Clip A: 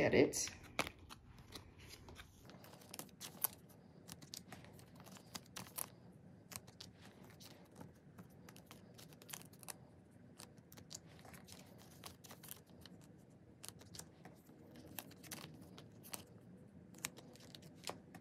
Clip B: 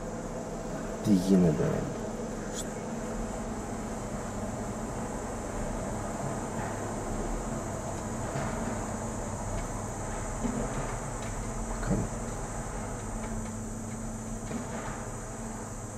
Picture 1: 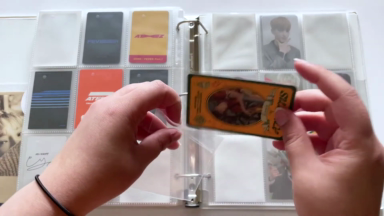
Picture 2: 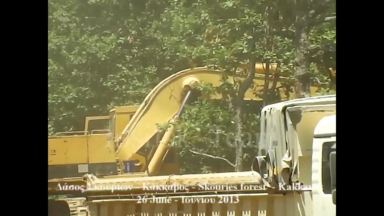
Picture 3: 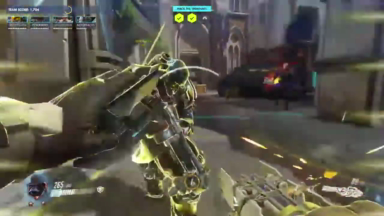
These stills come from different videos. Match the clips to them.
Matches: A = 1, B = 2